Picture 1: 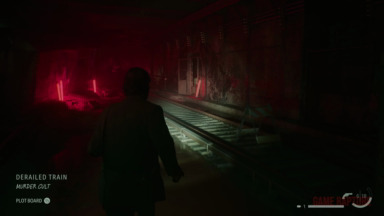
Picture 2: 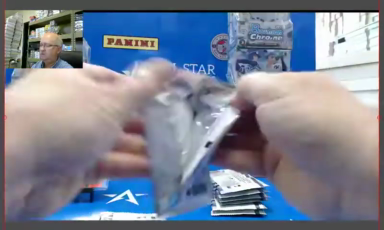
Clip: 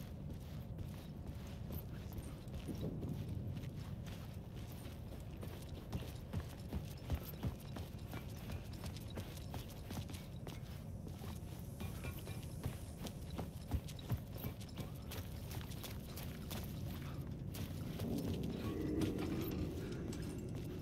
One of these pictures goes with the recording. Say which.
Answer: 1